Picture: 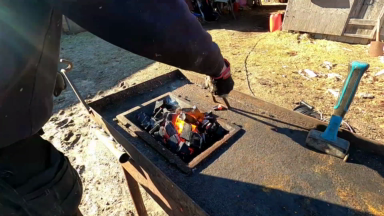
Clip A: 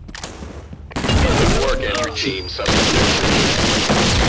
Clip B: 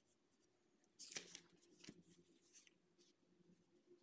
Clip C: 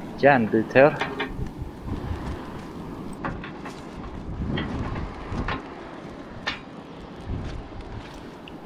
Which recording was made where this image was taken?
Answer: C